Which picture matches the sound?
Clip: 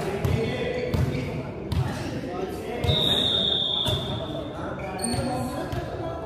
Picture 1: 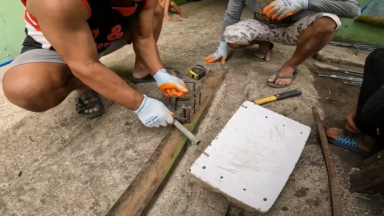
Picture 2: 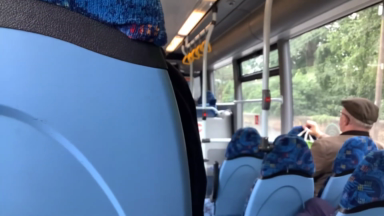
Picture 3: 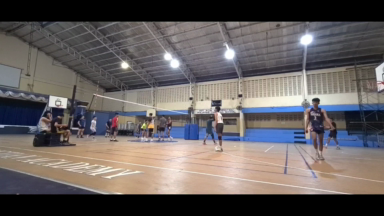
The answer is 3